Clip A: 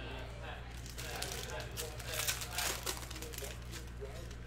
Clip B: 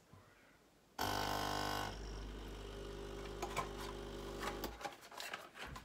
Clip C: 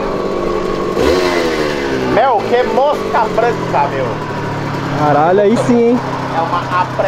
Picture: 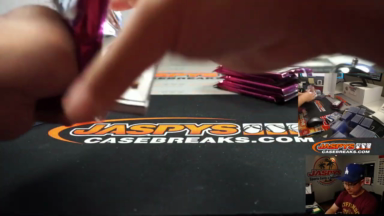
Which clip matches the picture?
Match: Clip A